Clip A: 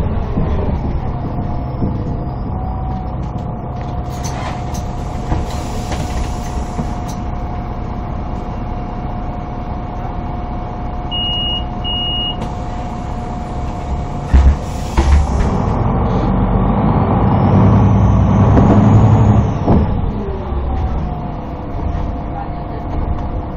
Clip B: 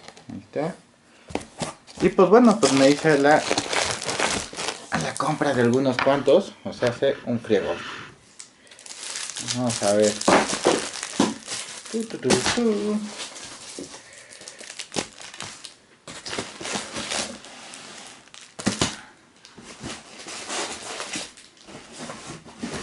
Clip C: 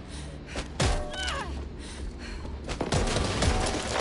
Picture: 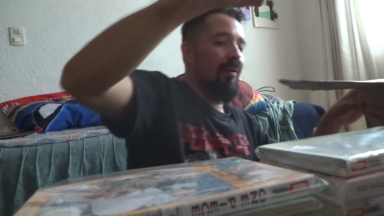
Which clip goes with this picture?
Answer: B